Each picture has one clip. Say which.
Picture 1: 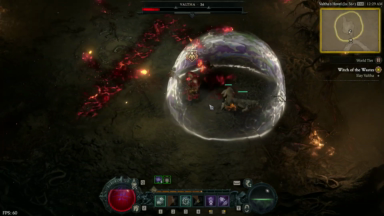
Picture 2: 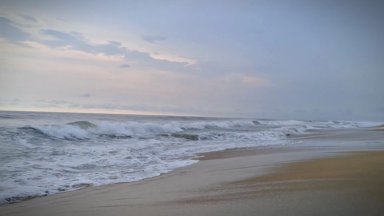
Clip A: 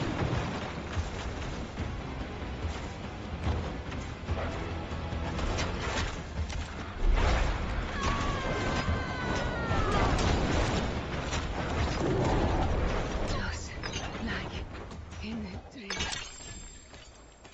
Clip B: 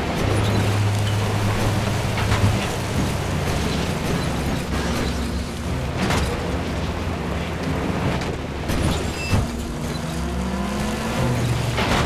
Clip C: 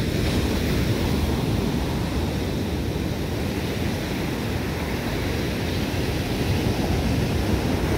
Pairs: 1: A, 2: C